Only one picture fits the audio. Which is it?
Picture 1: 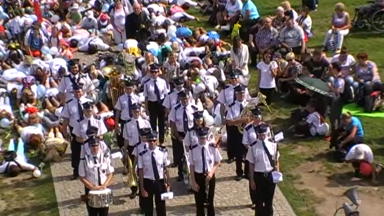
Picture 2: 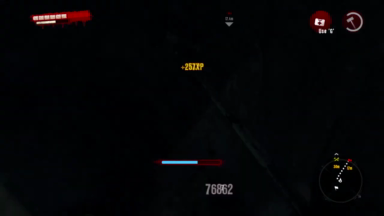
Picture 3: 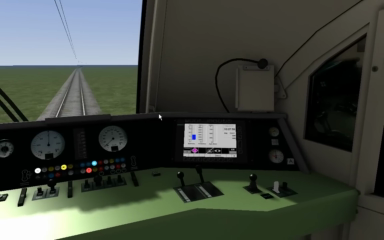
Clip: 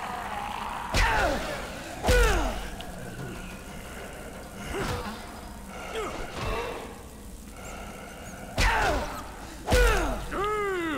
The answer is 2